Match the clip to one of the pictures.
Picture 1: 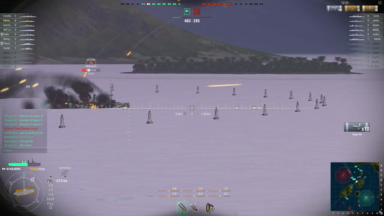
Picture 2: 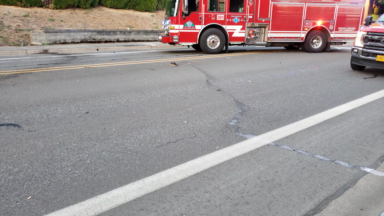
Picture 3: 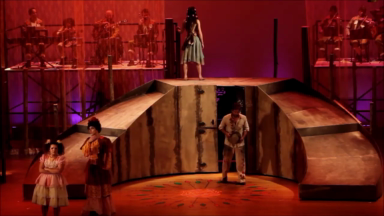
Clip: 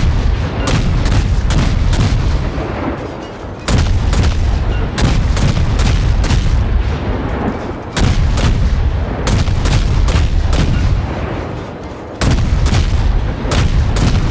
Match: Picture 1